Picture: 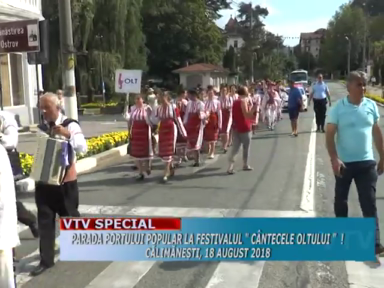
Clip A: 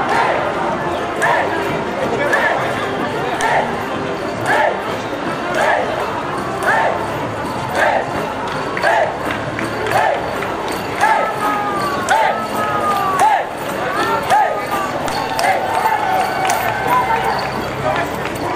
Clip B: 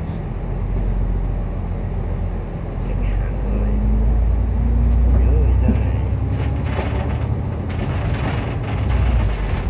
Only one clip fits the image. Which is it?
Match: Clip A